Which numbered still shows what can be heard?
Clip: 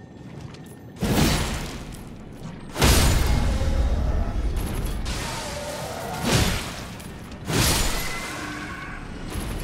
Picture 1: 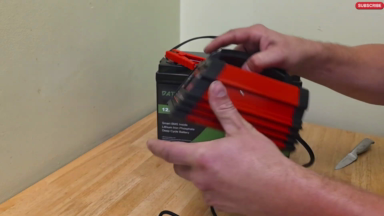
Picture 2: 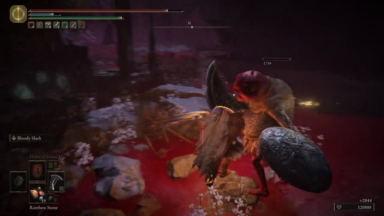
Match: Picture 2